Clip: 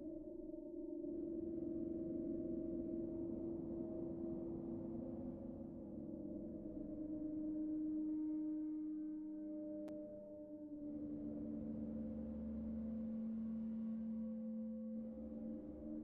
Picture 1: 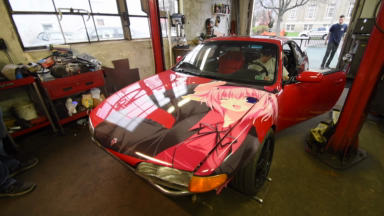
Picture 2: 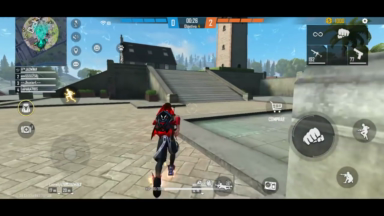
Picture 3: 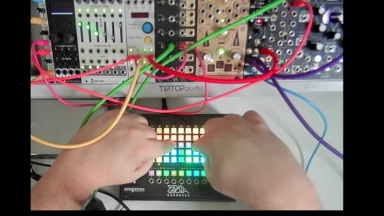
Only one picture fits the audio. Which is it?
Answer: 3